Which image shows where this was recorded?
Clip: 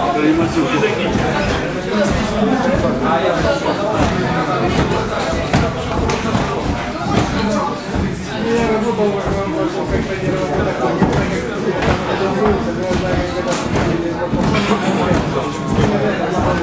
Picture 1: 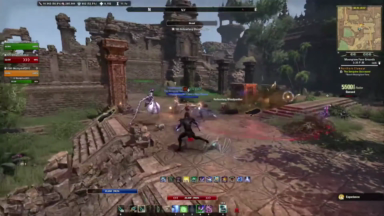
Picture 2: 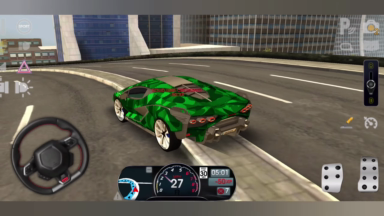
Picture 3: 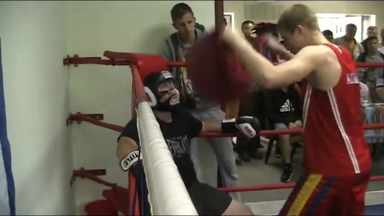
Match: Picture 3